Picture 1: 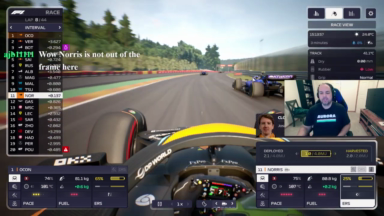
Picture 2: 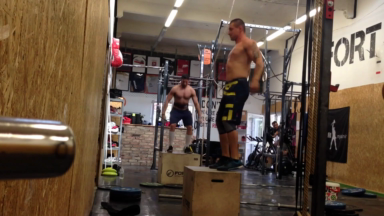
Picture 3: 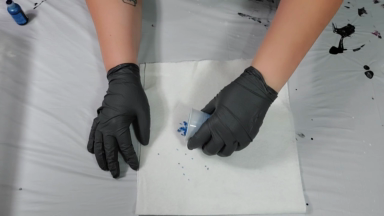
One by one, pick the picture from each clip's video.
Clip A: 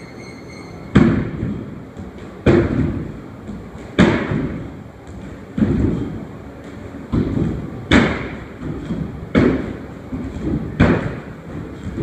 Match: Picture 2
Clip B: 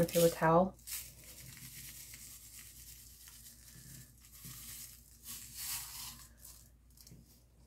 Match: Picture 3